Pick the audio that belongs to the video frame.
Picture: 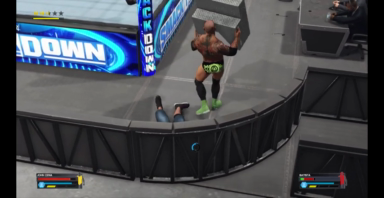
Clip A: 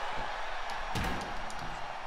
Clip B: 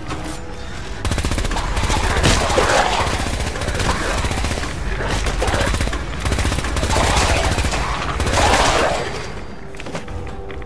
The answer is A